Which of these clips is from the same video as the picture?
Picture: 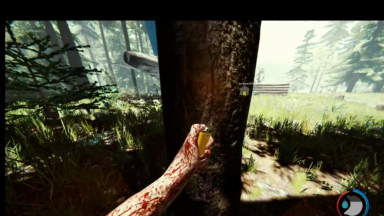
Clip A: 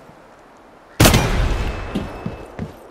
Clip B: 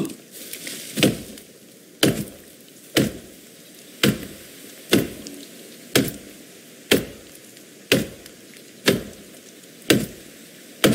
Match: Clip B